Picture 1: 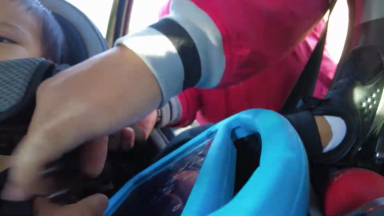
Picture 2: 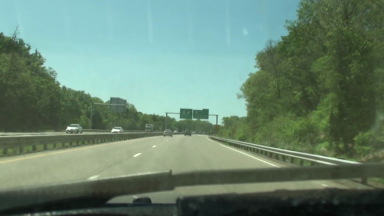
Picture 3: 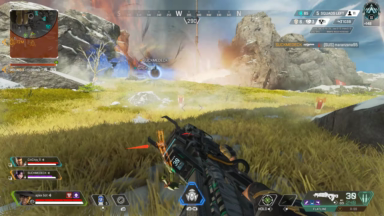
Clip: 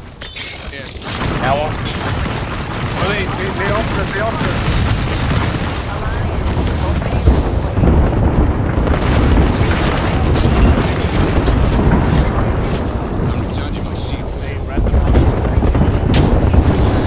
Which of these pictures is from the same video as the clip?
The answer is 3